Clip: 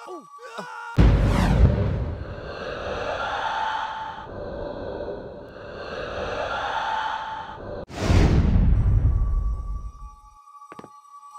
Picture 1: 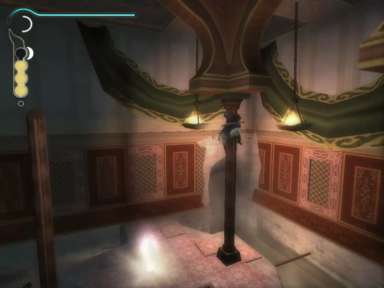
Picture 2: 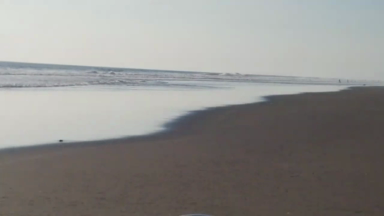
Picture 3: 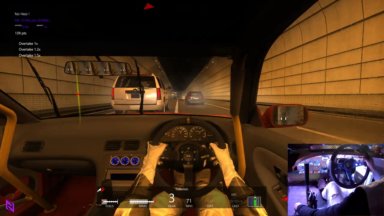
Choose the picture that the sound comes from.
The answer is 1